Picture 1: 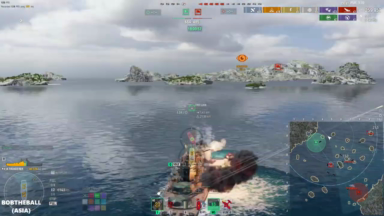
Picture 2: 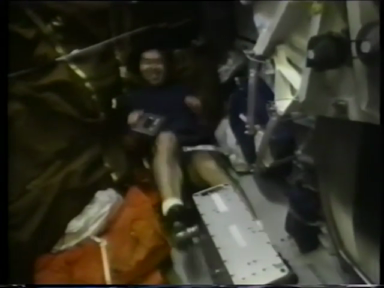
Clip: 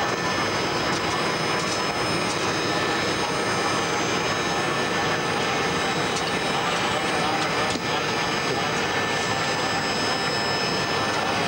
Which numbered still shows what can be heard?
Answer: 2